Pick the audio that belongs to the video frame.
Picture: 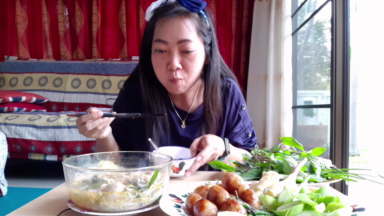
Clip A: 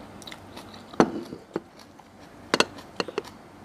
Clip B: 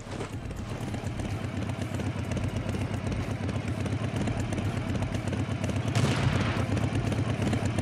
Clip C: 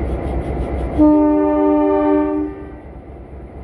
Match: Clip A